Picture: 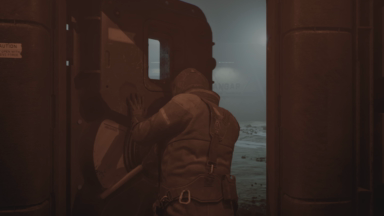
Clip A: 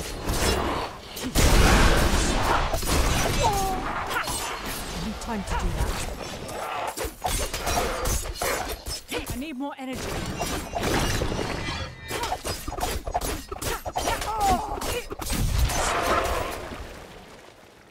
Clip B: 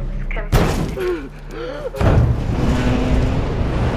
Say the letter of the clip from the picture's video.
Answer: B